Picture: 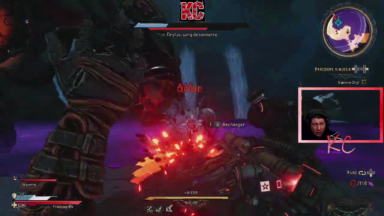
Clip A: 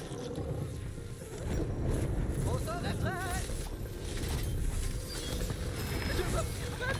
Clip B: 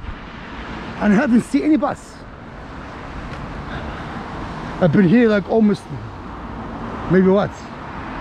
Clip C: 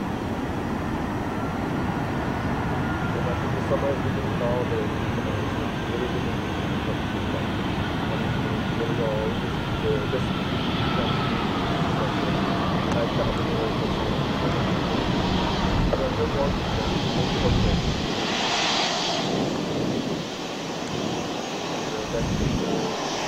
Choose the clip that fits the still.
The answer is A